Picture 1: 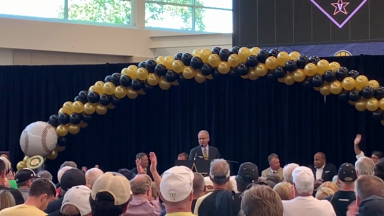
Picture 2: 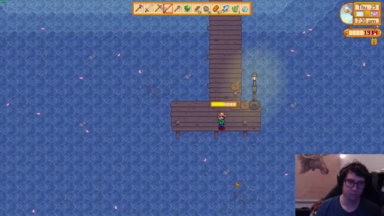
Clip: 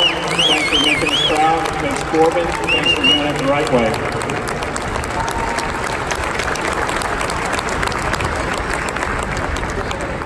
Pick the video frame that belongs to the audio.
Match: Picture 1